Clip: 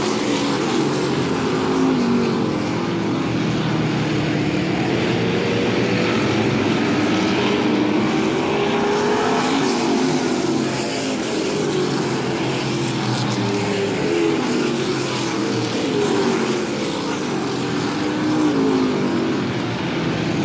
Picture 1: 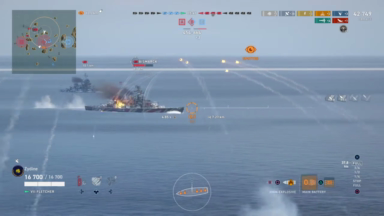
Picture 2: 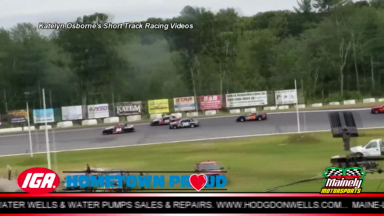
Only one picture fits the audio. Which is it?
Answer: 2